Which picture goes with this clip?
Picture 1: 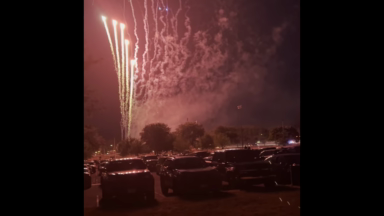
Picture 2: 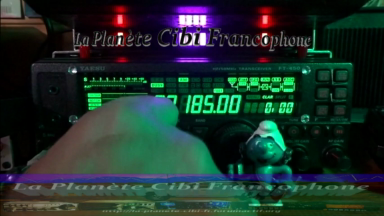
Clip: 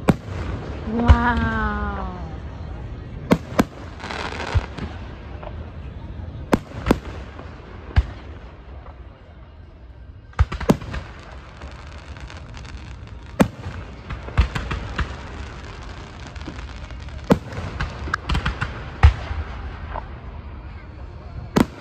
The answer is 1